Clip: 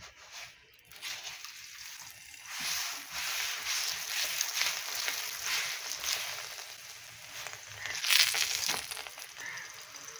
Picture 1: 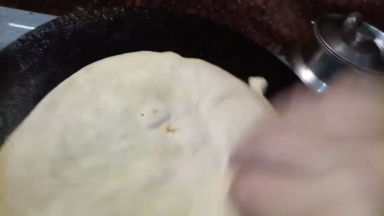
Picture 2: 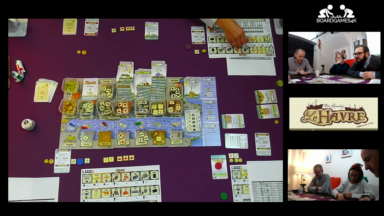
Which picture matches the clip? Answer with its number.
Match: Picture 1